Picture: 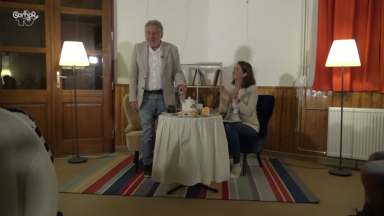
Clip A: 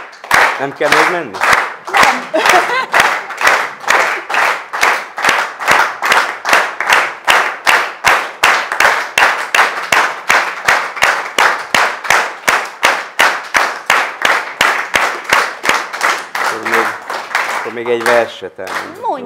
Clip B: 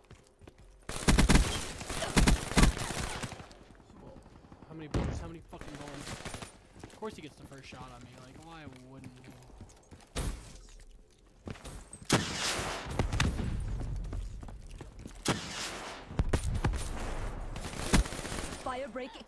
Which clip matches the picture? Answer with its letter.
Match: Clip A